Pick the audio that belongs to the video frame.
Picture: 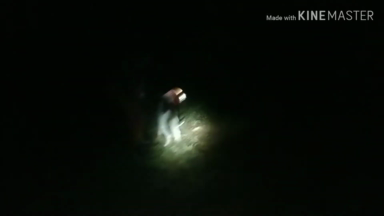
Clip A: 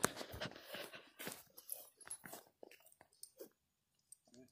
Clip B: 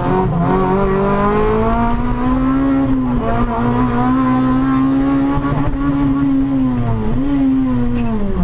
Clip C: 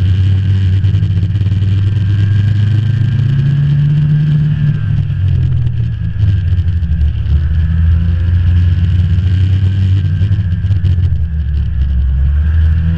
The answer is A